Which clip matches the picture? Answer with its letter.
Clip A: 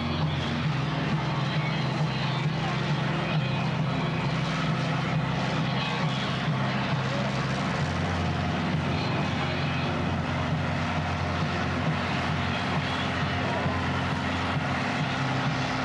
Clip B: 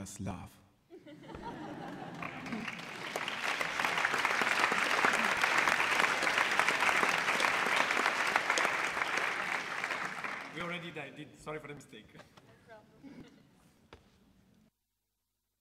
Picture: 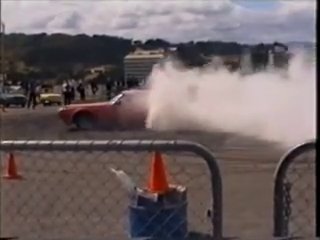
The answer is A